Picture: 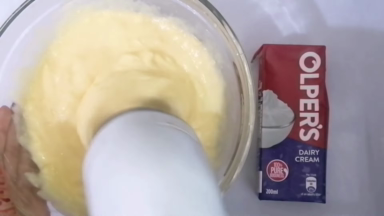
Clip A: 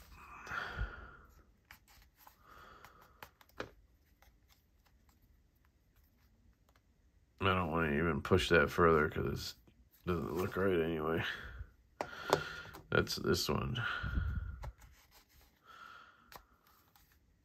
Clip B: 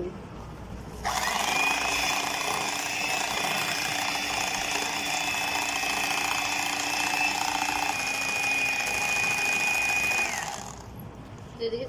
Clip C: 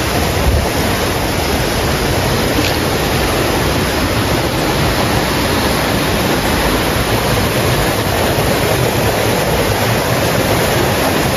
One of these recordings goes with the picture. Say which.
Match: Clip B